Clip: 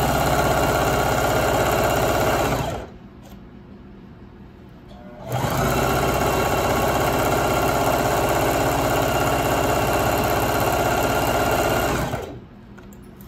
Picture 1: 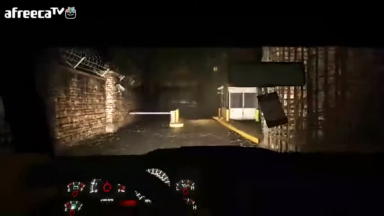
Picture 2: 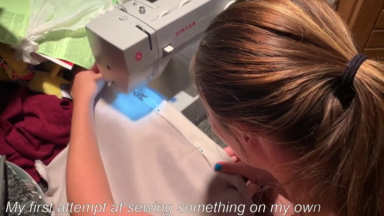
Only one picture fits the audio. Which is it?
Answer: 2